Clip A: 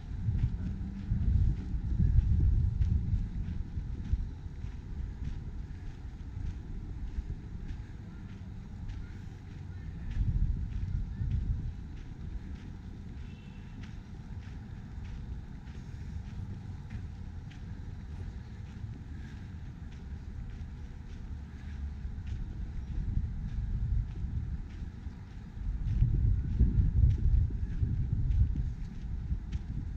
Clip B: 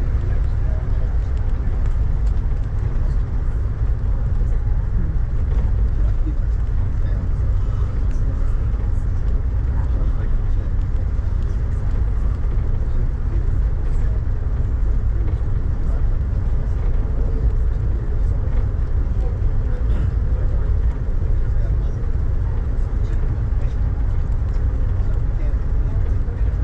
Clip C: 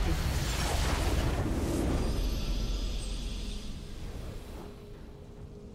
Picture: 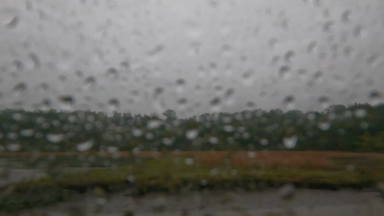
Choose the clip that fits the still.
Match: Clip B